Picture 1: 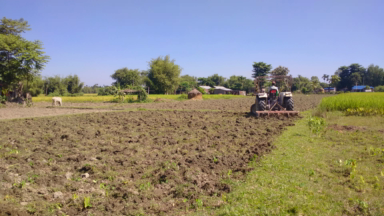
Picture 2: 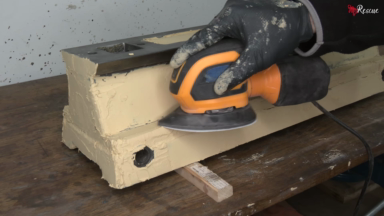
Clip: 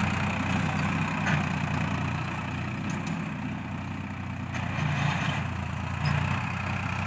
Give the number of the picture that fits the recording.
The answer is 1